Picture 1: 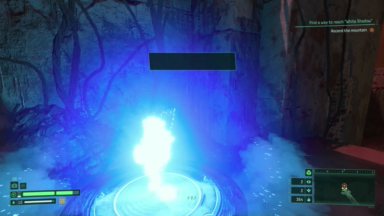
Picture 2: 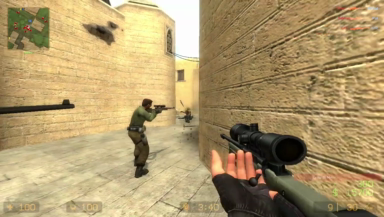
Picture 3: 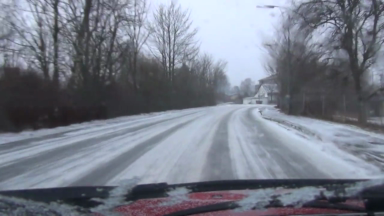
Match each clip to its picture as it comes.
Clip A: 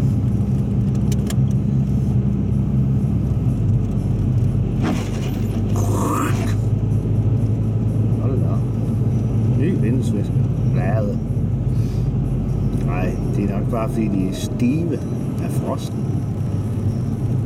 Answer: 3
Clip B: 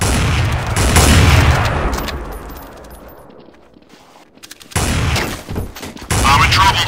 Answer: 2